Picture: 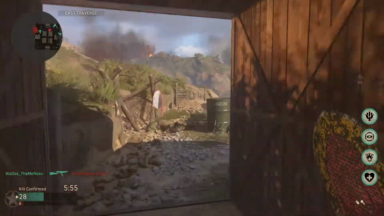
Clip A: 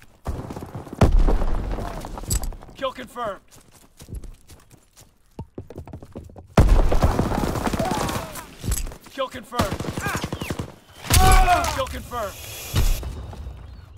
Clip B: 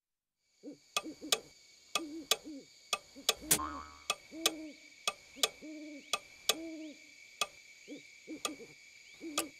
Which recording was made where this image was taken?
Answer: A